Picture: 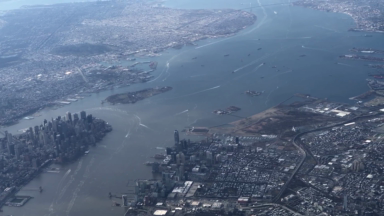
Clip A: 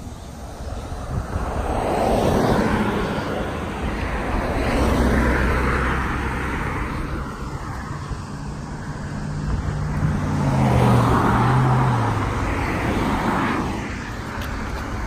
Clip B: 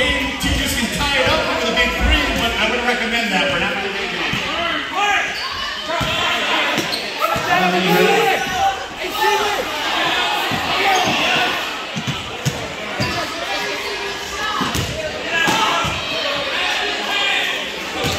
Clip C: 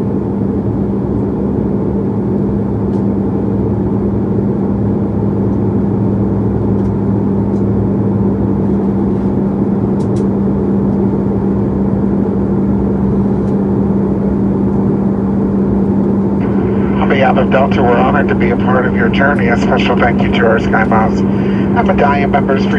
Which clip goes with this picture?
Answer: C